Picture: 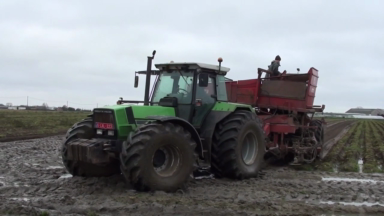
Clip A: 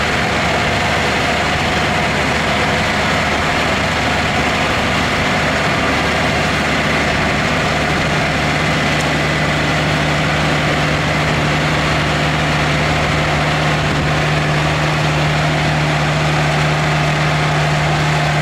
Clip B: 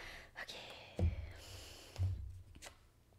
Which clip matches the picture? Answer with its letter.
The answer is A